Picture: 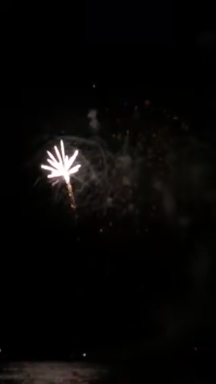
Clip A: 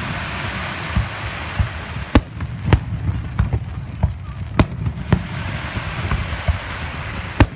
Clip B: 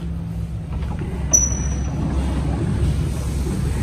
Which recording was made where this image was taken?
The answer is A